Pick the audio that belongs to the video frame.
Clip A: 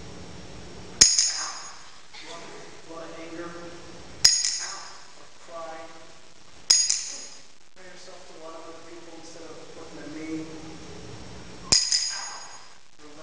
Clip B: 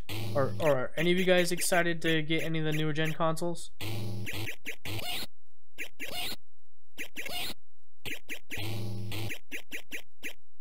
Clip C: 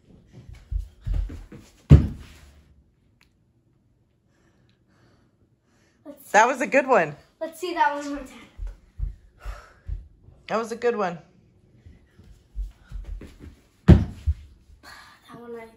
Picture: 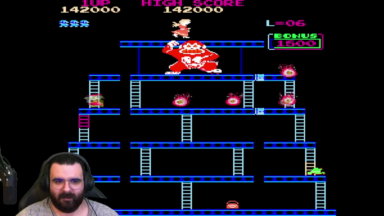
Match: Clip B